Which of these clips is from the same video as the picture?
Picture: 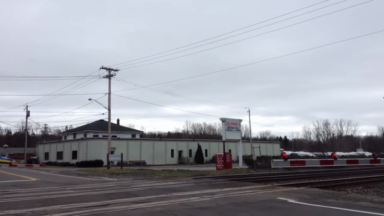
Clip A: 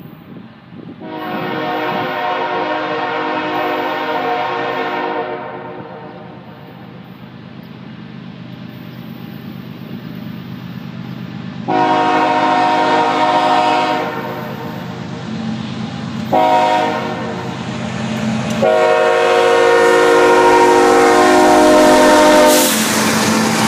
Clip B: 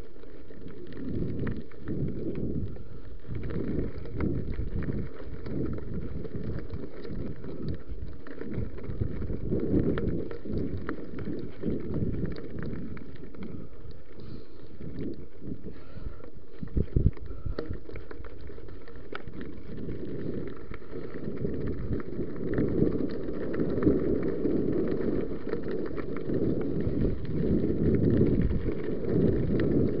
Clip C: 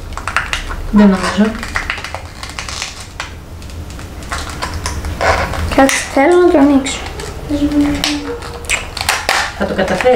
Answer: A